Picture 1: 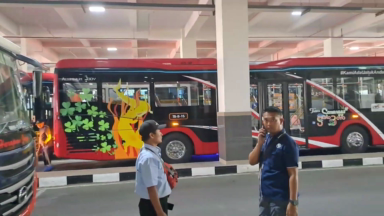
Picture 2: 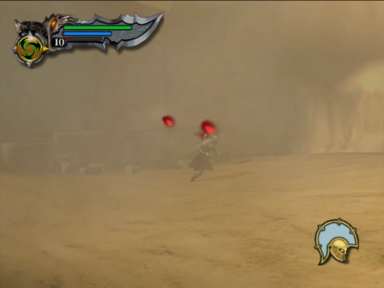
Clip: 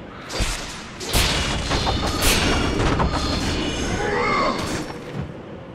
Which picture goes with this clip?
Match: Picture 2